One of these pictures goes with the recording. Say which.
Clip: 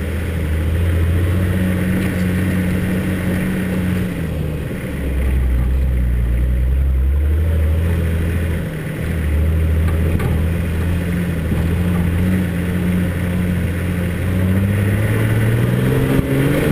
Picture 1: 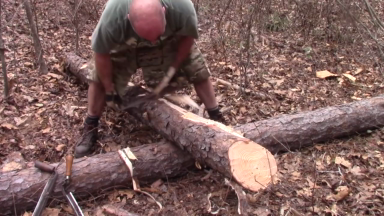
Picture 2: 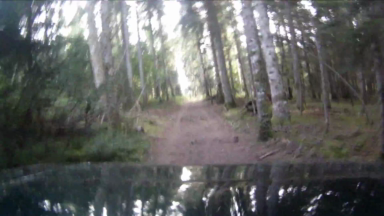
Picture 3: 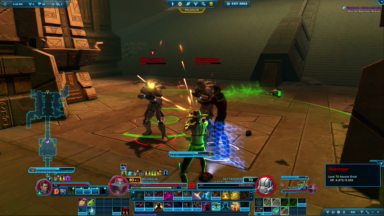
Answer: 2